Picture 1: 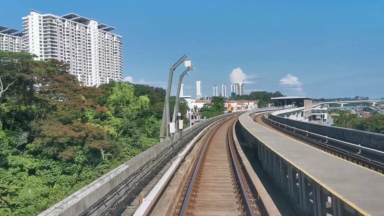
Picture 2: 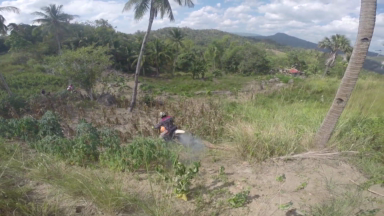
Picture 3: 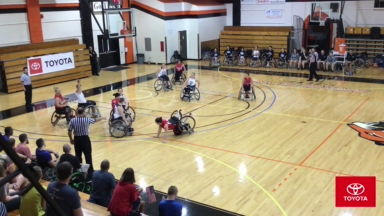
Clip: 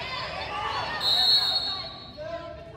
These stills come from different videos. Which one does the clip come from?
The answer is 3